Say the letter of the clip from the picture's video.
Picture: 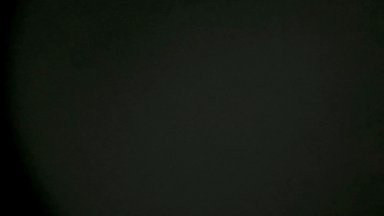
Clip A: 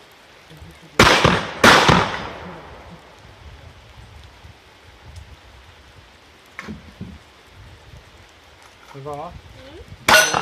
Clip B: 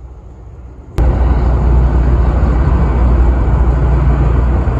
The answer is B